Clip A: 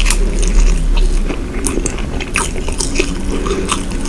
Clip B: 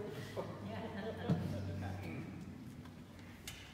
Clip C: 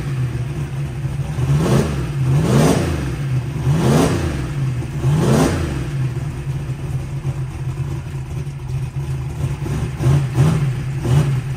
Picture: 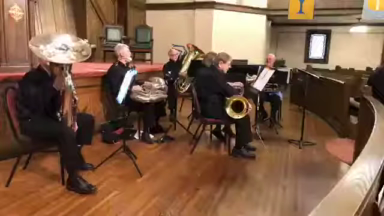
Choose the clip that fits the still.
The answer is B